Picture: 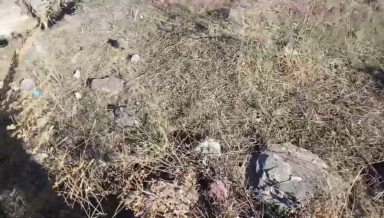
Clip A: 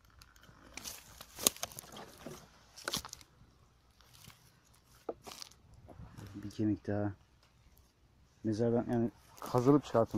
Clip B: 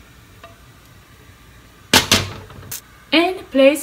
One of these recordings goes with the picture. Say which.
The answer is A